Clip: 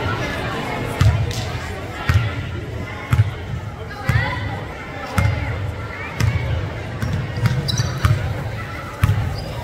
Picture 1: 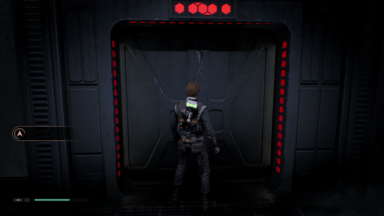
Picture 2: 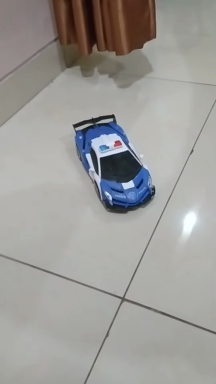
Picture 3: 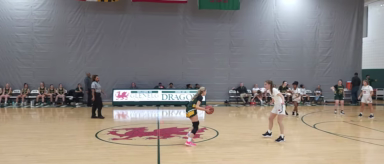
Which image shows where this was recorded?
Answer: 3